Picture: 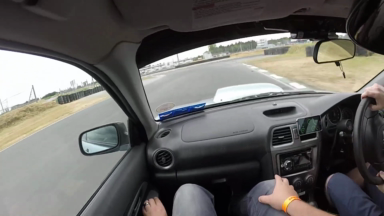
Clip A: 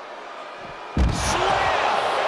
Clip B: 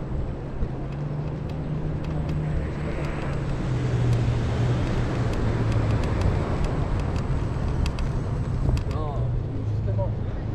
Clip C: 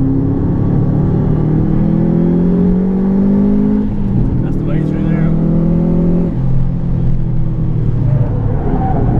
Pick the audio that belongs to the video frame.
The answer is C